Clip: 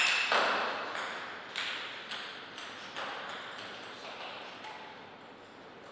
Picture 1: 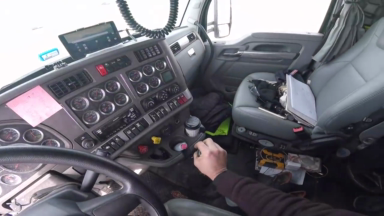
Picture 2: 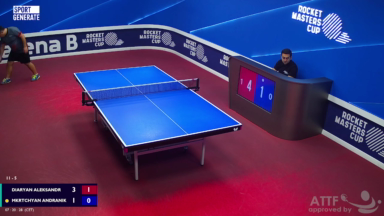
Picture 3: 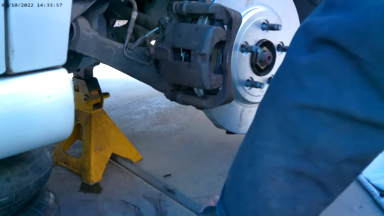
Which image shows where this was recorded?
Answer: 2